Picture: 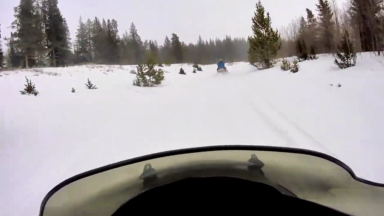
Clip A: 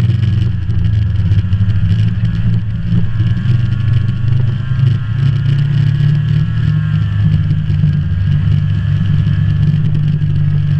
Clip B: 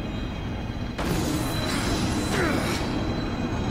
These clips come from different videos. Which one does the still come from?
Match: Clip A